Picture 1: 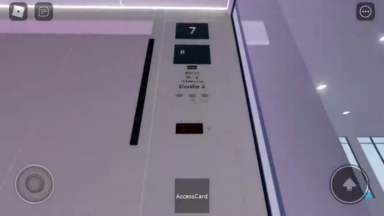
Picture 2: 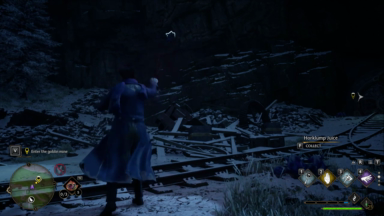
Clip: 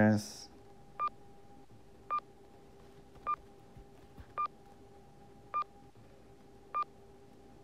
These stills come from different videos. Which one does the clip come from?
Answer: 1